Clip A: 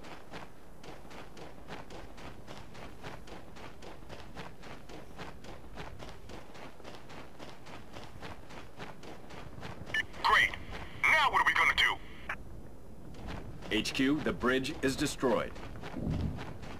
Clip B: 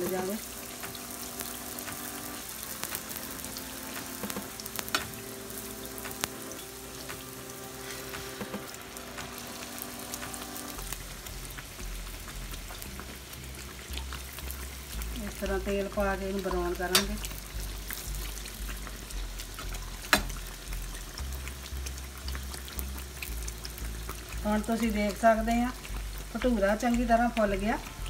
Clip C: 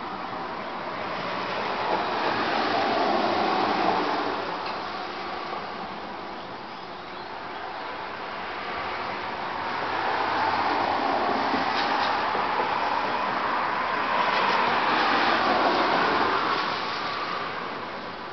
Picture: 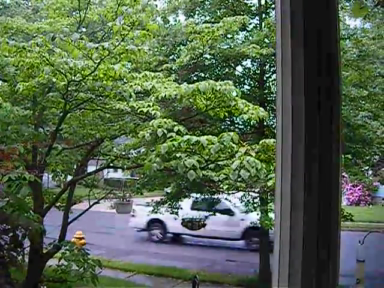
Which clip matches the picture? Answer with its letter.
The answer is C